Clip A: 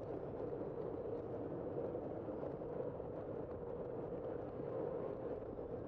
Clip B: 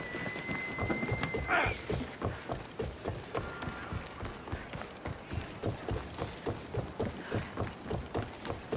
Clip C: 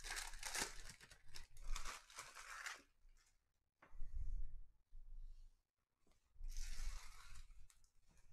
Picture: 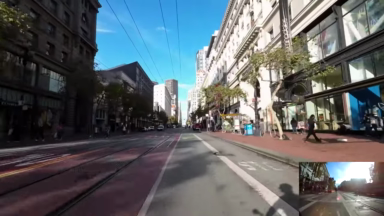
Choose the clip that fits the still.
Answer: A